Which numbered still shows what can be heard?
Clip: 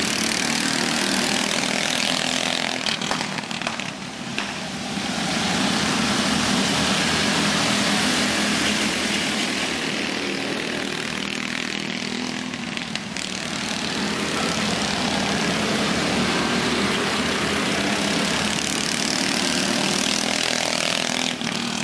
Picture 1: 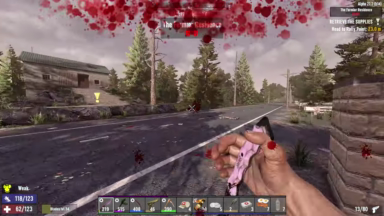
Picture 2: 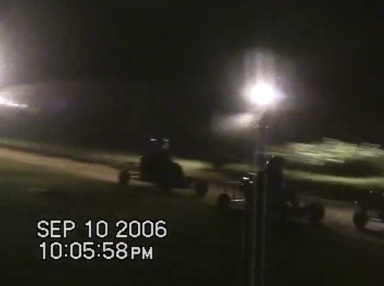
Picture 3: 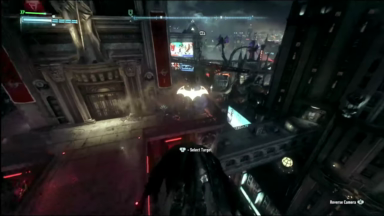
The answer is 2